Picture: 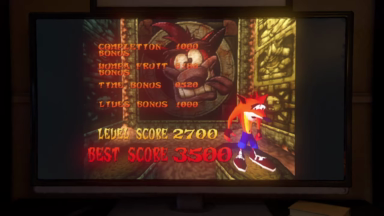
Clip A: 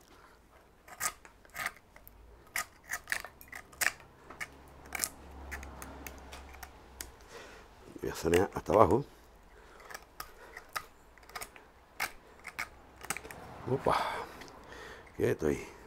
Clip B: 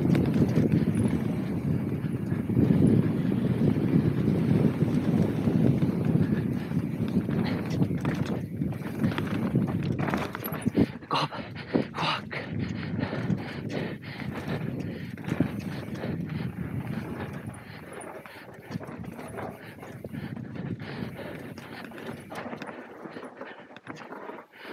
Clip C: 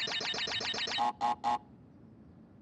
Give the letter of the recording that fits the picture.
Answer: C